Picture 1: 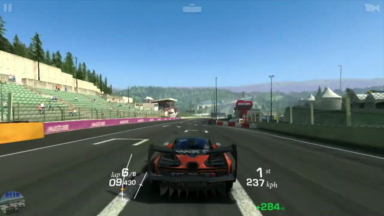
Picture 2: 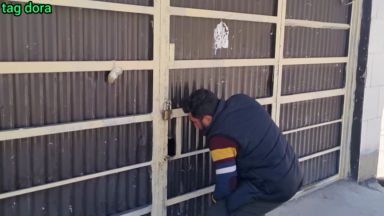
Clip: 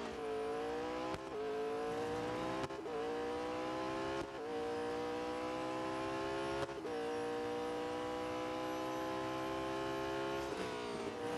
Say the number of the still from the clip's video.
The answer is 1